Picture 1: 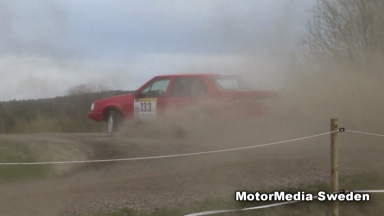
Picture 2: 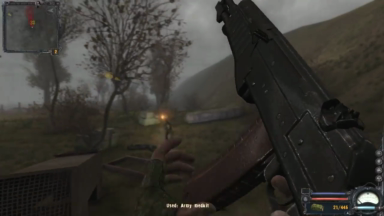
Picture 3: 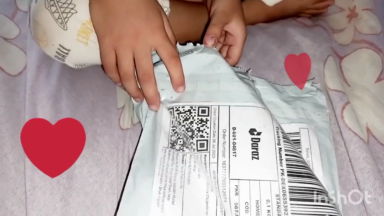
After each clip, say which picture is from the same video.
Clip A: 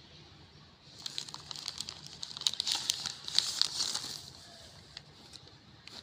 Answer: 3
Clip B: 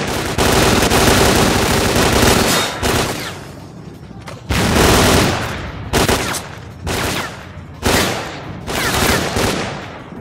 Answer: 2